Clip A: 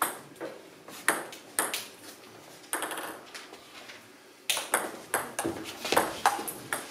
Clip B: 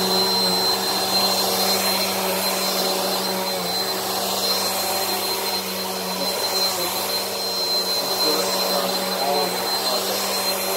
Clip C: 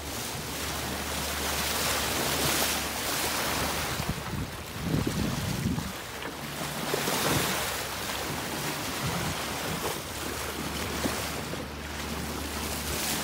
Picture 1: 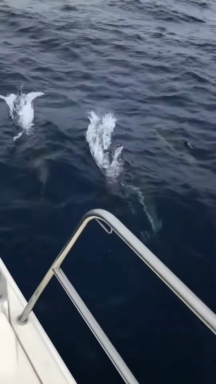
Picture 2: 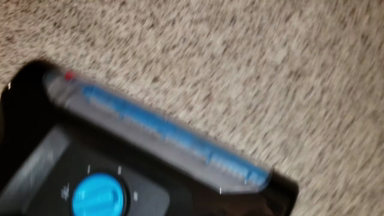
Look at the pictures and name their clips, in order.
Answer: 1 C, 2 B